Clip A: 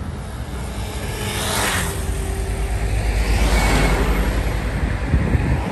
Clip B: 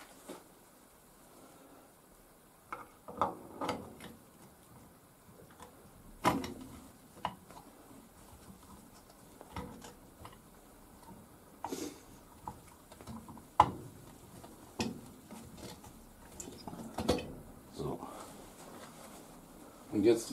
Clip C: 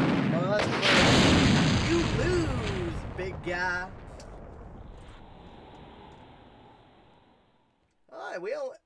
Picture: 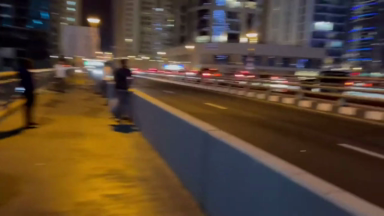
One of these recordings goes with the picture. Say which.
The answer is A